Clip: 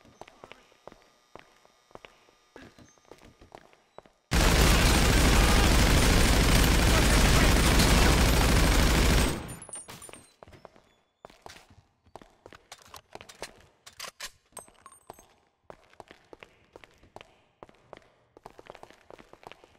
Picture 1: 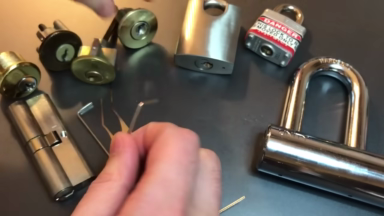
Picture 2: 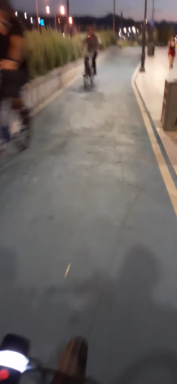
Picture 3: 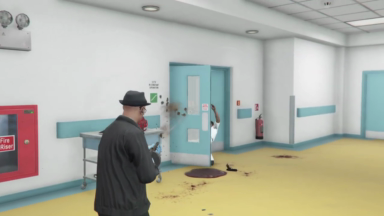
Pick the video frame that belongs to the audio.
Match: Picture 3